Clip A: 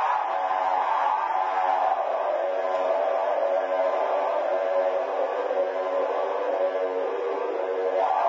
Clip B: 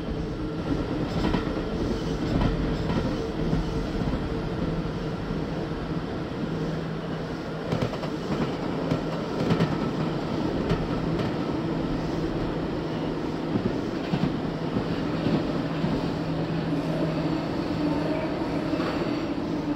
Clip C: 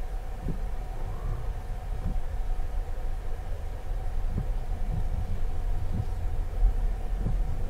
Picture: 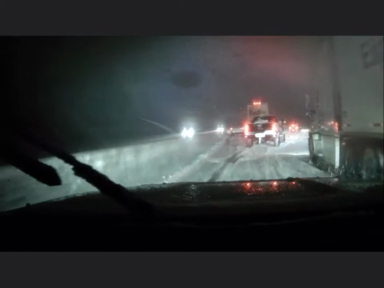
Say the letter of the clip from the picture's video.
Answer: C